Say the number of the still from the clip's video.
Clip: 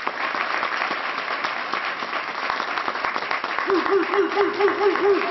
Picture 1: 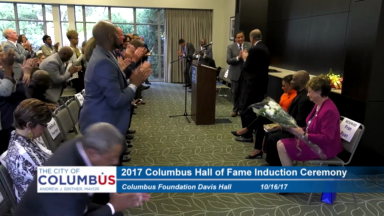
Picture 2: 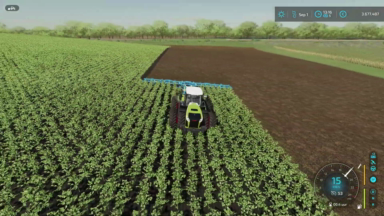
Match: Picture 1